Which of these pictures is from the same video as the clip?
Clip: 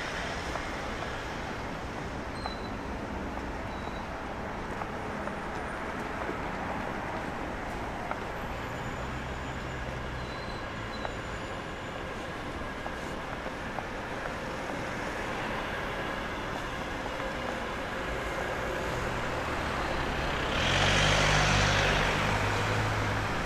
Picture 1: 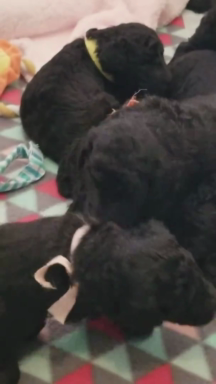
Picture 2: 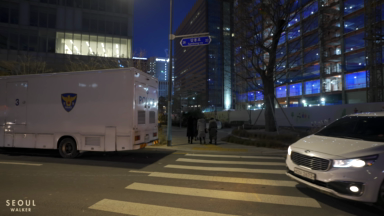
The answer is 2